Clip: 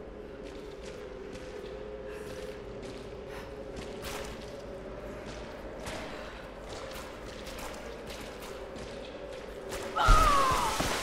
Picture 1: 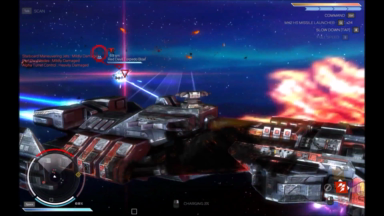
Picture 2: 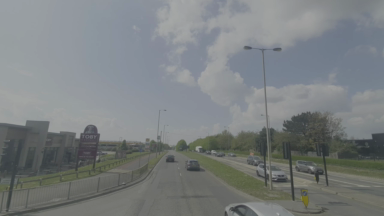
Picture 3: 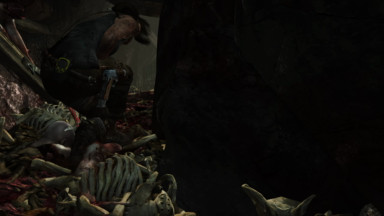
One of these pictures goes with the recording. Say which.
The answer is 3